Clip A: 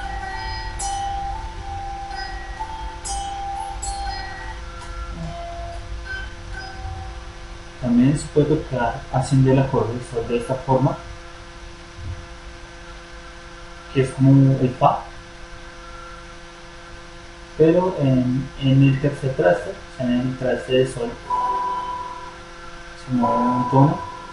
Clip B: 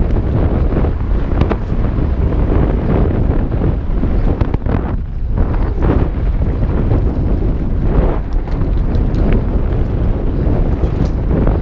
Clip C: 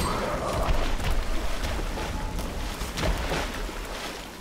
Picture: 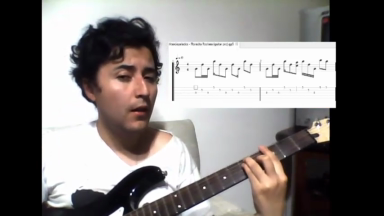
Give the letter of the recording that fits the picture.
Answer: A